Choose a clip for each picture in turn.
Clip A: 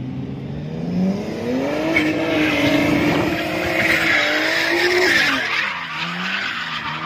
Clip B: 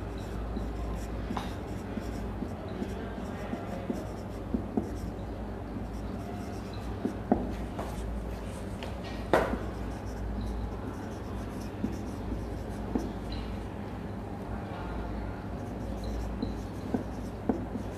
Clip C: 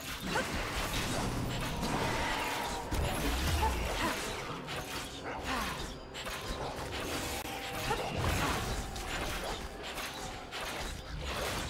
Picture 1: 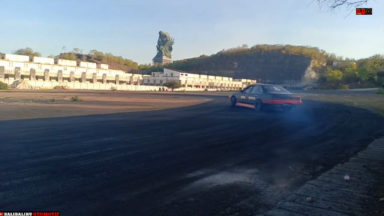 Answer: A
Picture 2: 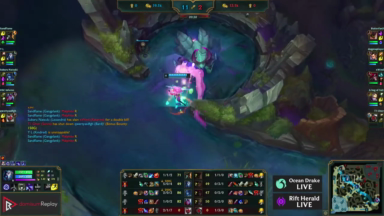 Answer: C